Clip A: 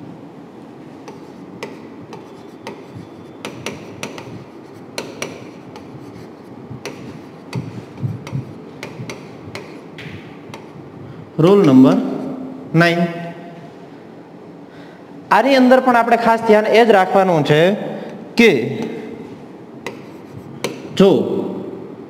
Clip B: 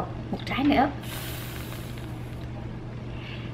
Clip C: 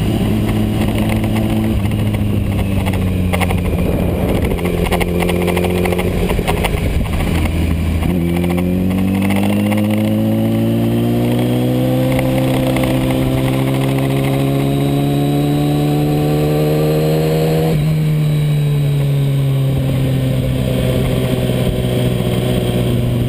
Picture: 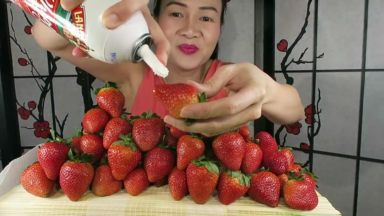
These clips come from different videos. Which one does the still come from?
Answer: B